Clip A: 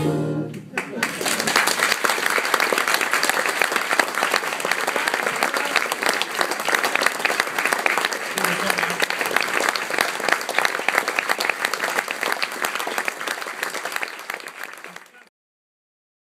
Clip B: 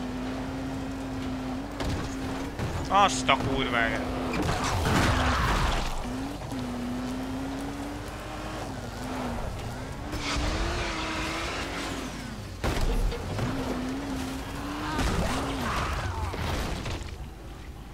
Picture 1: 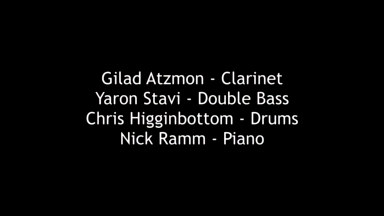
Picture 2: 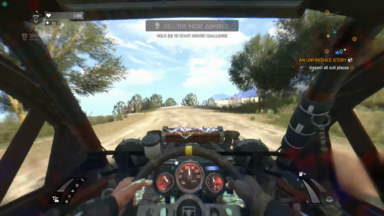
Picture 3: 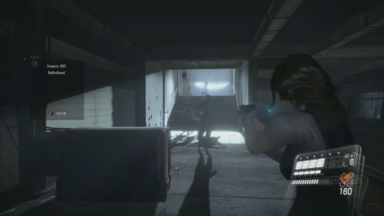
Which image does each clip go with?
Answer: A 1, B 2